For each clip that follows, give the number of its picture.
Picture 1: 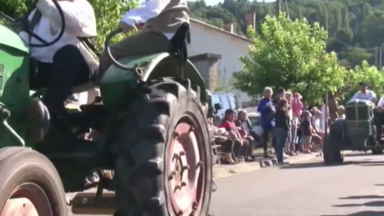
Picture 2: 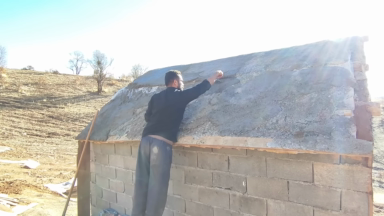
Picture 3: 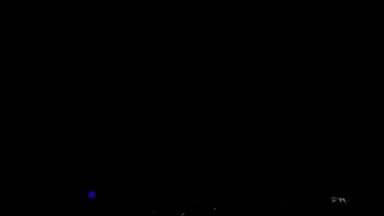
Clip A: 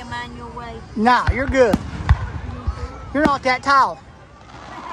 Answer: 3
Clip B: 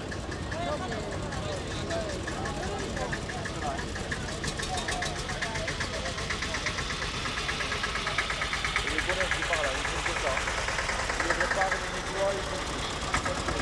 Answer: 1